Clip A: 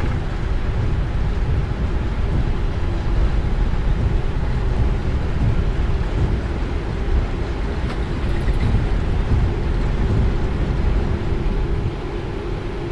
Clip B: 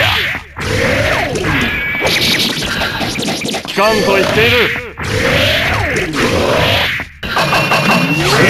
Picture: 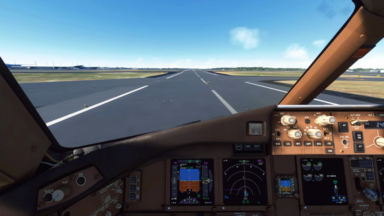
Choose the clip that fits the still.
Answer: A